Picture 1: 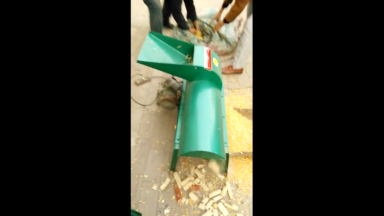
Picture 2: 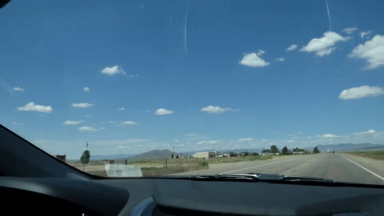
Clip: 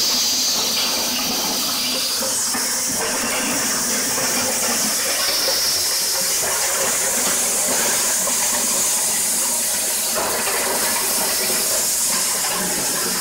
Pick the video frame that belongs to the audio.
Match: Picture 1